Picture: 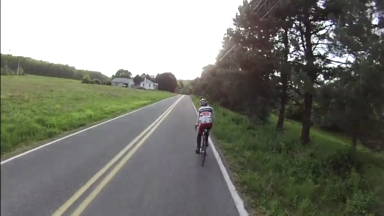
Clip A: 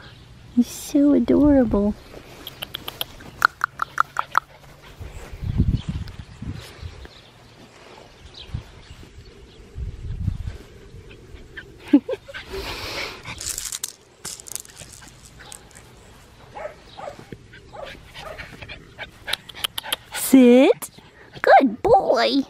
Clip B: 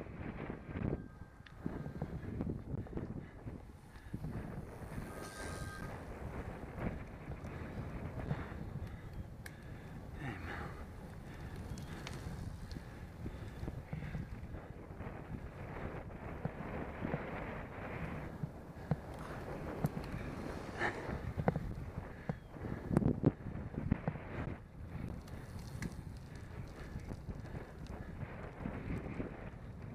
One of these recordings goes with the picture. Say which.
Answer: B